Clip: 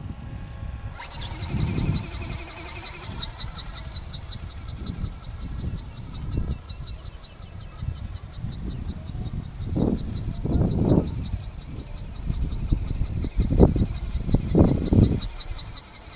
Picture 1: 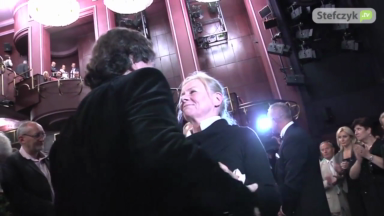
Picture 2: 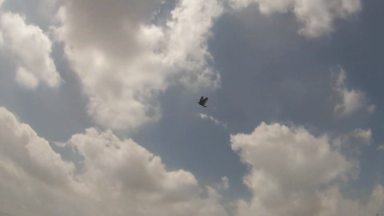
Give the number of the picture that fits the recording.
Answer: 2